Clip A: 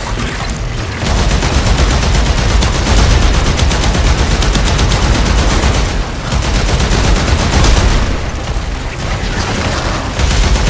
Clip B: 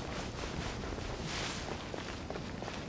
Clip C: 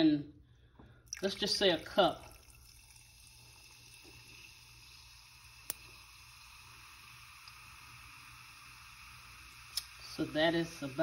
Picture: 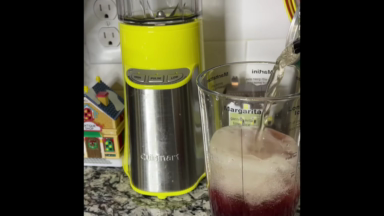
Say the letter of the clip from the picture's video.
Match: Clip C